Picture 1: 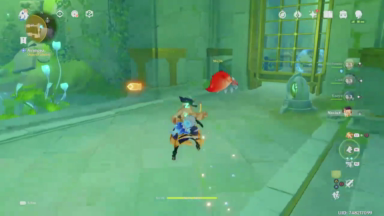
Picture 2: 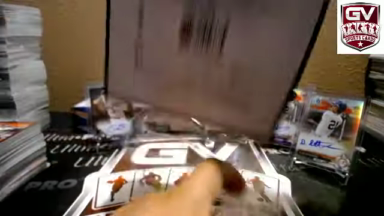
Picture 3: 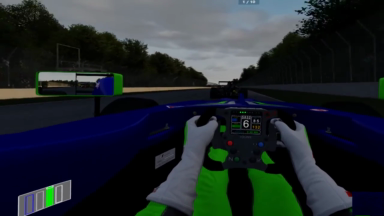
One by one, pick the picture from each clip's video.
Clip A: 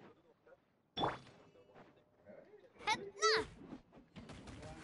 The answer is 1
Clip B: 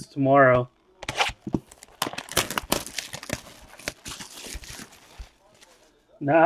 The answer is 2